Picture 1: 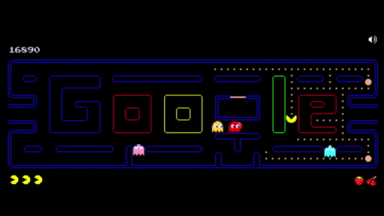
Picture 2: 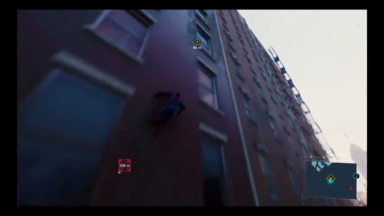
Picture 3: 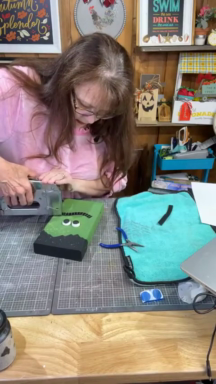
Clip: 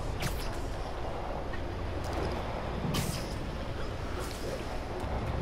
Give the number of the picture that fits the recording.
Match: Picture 2